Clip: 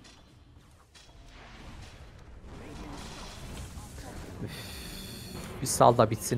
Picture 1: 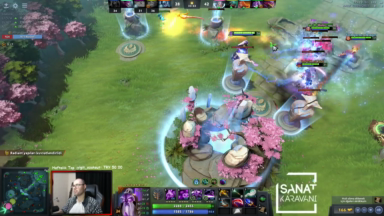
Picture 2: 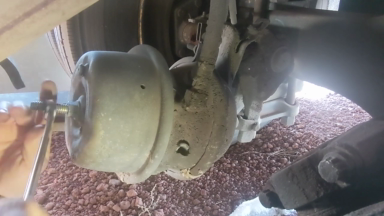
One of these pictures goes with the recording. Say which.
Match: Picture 1